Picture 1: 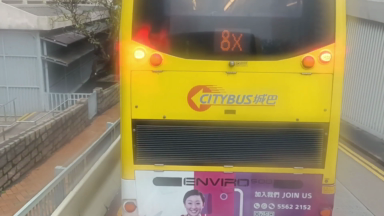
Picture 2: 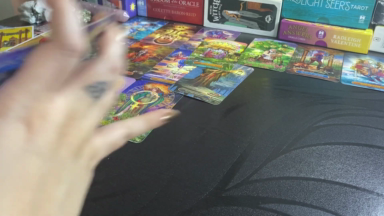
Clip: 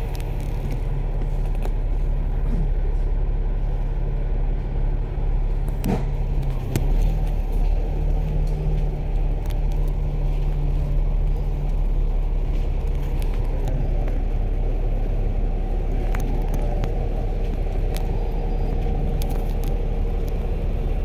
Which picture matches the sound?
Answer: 1